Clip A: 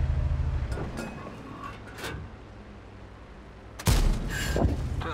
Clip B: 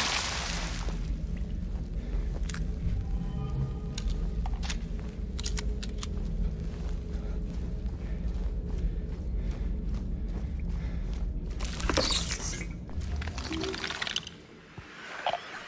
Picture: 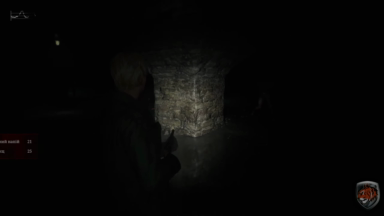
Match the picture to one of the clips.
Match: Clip B